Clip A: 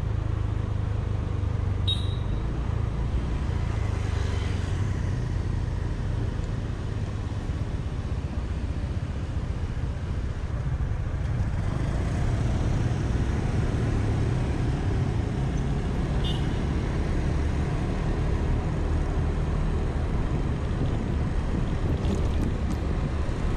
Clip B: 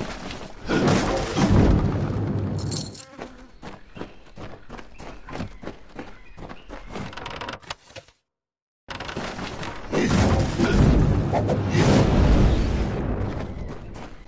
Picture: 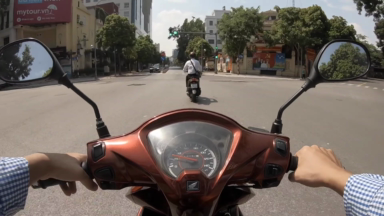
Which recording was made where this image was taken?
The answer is A